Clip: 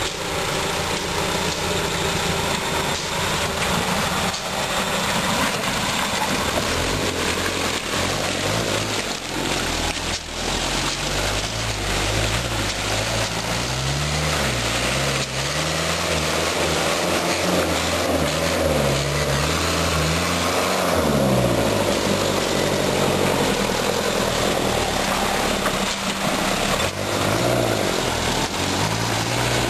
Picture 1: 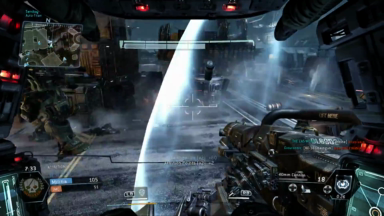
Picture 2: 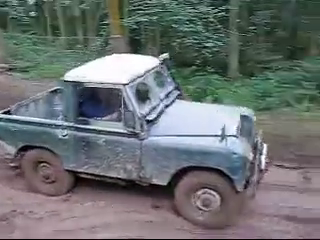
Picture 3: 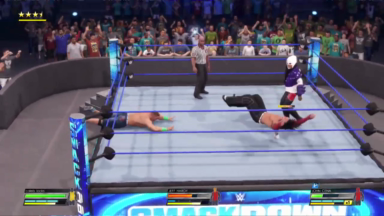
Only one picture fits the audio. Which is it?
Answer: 2